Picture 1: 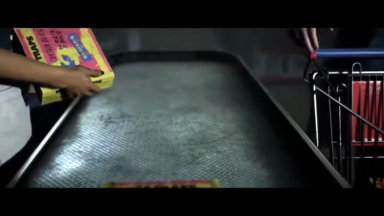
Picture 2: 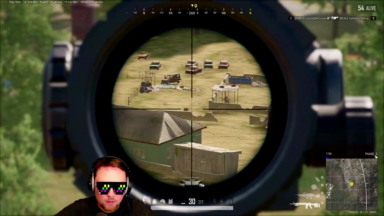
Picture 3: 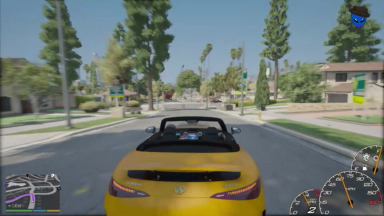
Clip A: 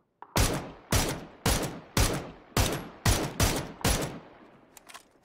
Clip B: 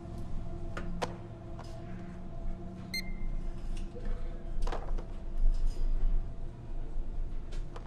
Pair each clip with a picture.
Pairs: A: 2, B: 1